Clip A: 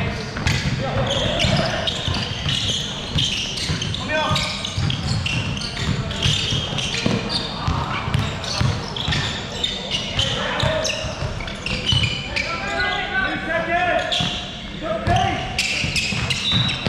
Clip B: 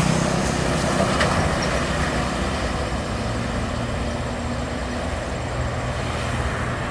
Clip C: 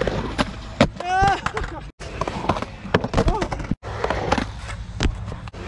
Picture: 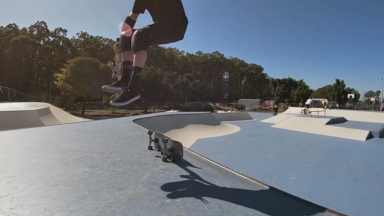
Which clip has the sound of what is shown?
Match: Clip C